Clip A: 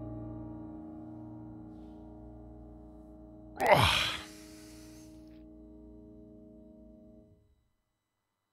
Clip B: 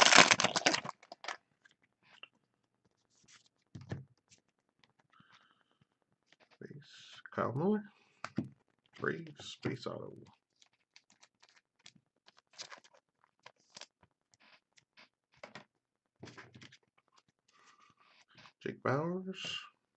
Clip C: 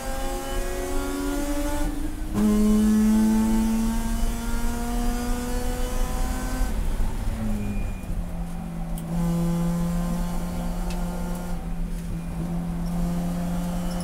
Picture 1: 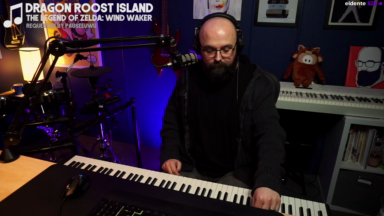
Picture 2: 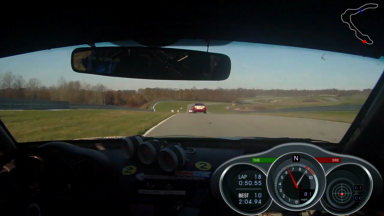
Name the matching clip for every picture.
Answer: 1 A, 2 C